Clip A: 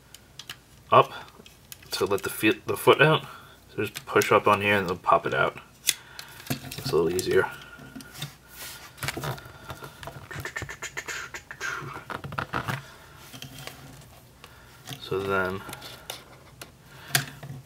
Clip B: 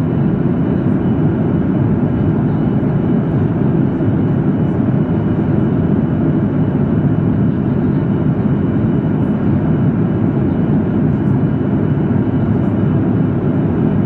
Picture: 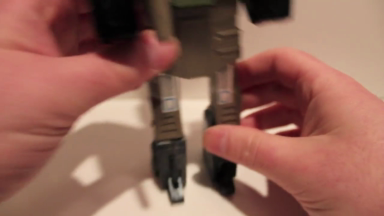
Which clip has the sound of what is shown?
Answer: A